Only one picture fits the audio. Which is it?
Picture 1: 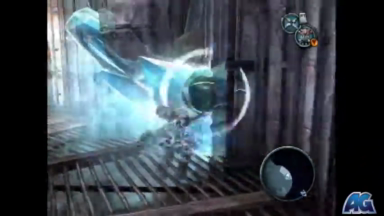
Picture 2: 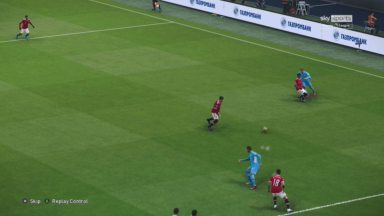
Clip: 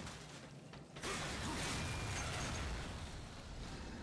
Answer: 1